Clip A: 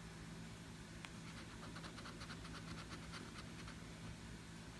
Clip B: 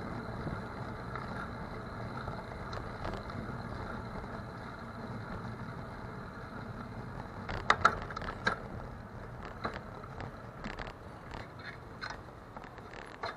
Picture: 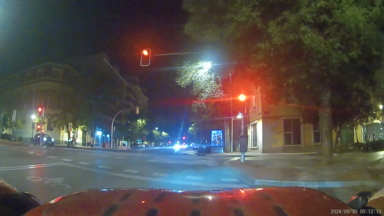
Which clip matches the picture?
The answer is B